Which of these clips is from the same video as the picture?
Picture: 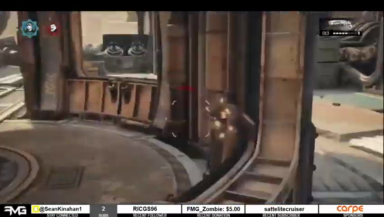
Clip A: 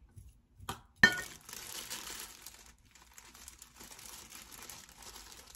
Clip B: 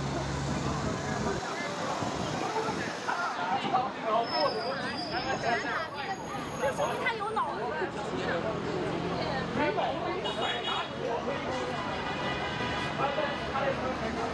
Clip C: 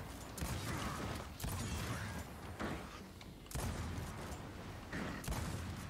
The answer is C